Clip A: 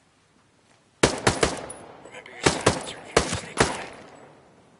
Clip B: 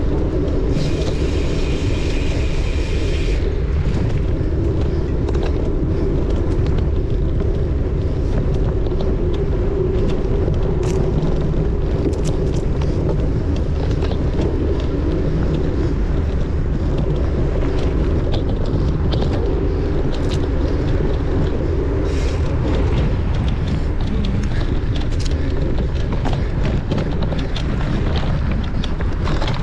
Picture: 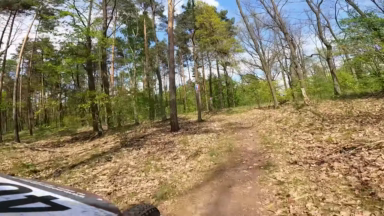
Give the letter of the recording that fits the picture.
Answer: B